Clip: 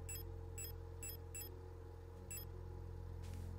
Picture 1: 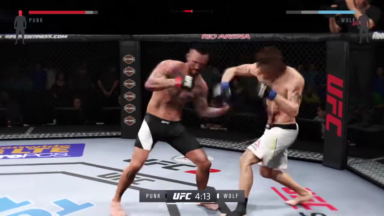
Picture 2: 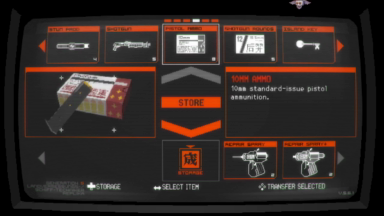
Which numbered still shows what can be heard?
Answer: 2